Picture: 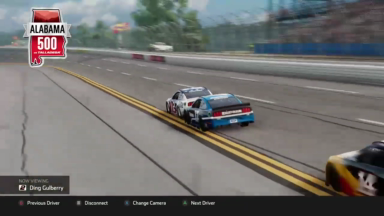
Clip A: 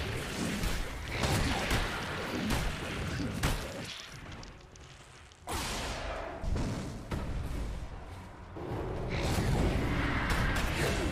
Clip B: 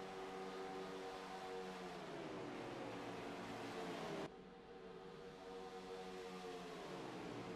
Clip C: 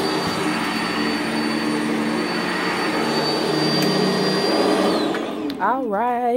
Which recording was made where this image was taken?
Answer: B